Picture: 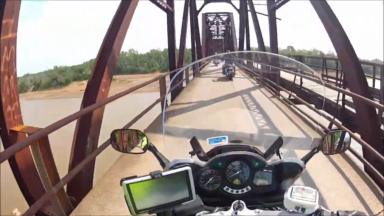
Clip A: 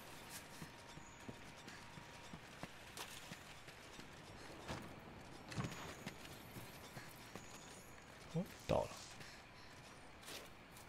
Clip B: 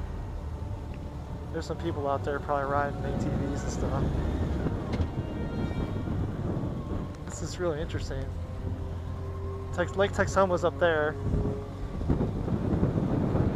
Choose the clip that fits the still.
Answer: B